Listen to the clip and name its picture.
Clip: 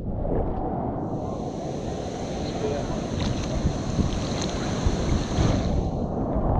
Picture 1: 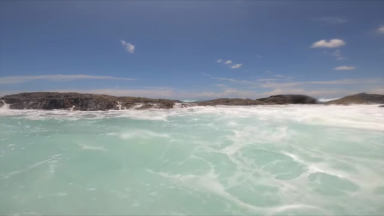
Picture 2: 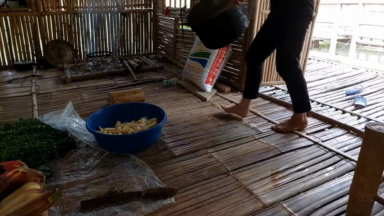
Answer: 1